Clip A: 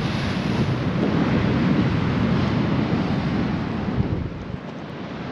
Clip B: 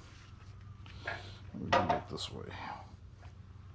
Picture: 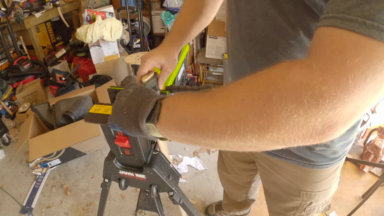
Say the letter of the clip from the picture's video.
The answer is B